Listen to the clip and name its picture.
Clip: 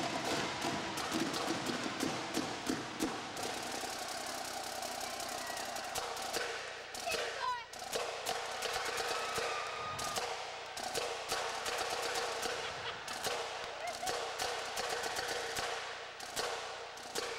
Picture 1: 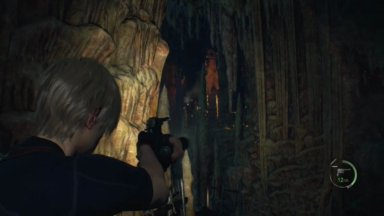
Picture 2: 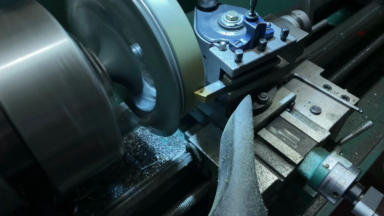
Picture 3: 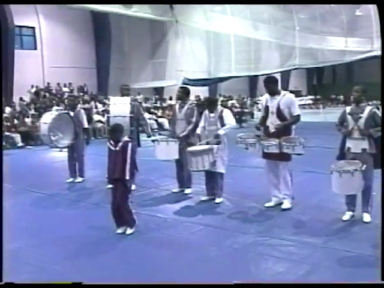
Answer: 3